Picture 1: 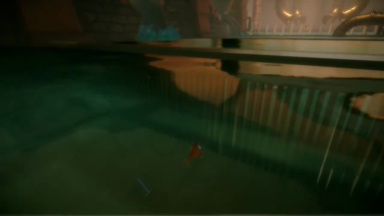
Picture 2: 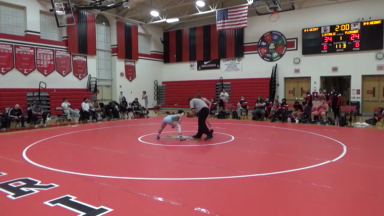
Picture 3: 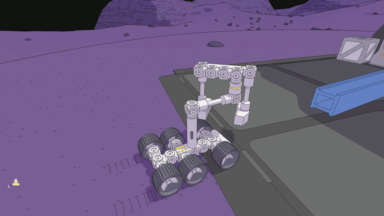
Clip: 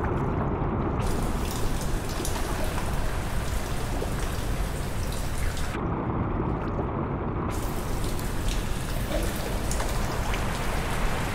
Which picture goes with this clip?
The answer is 1